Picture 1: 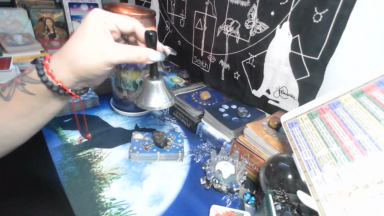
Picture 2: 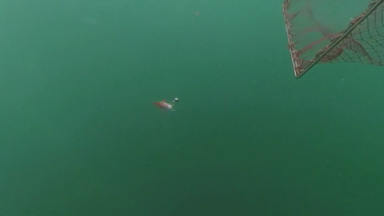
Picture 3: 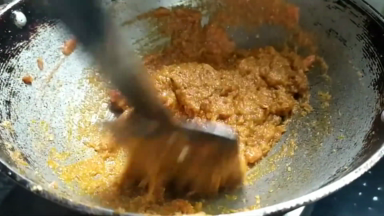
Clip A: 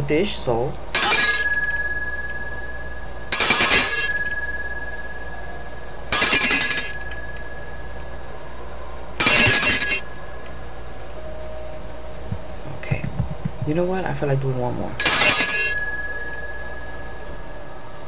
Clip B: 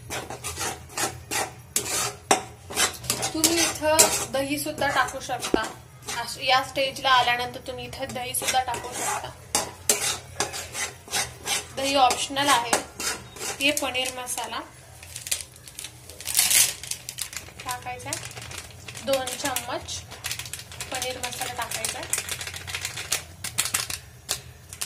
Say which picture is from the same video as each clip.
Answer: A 1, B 3